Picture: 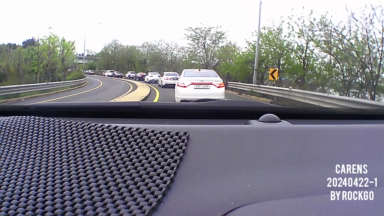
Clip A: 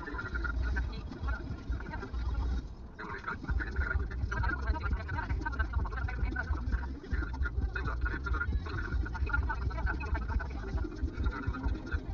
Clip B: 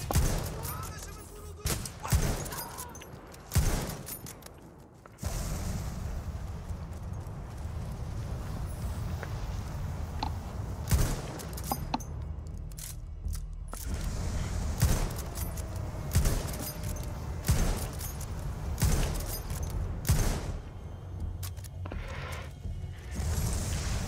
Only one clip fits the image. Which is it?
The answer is A